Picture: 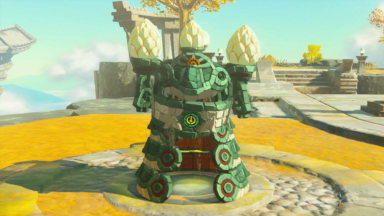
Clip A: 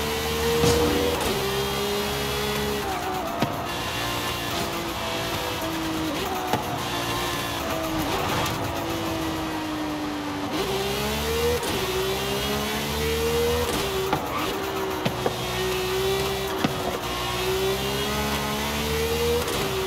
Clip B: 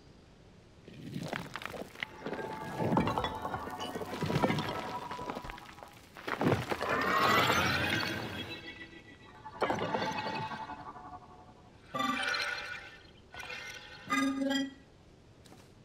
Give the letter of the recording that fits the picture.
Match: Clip B